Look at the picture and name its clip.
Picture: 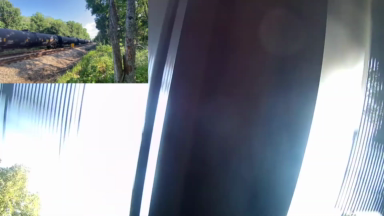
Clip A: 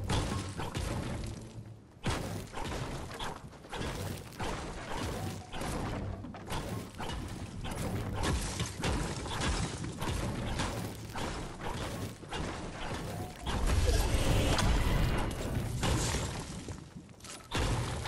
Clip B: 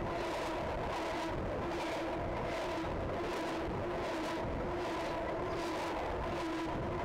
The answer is B